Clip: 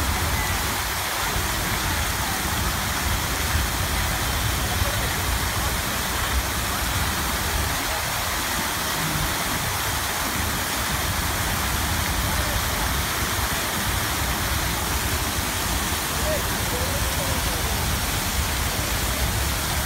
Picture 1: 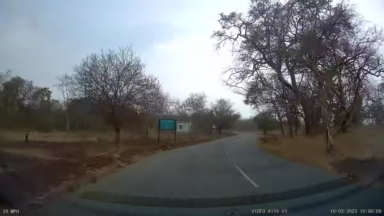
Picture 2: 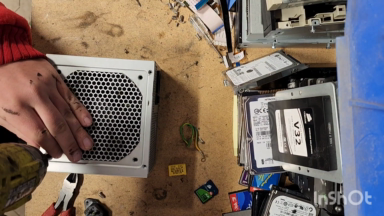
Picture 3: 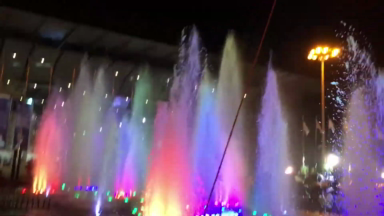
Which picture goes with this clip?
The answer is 3